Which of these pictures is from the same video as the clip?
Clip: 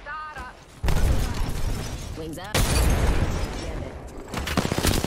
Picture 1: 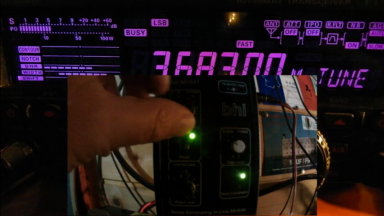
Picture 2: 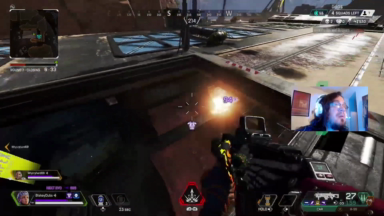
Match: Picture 2